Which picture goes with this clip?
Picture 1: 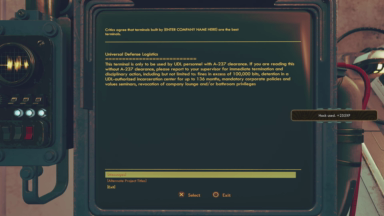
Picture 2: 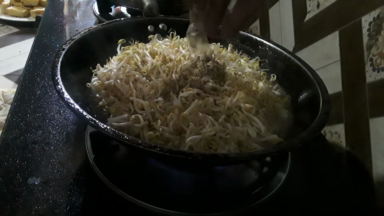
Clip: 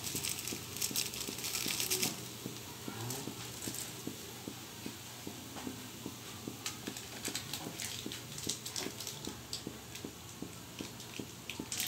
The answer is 2